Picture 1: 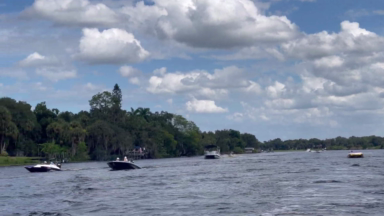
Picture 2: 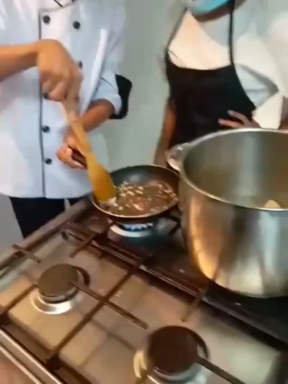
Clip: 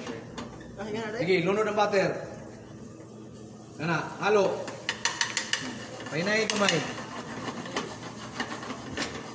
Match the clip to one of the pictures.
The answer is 2